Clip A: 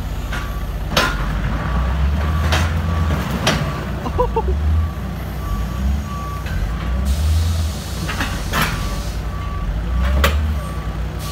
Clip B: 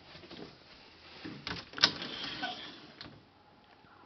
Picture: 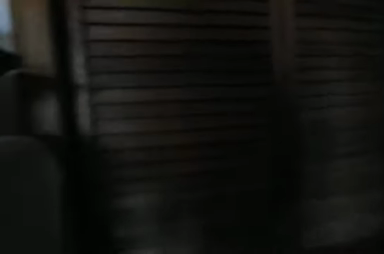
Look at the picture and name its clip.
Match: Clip B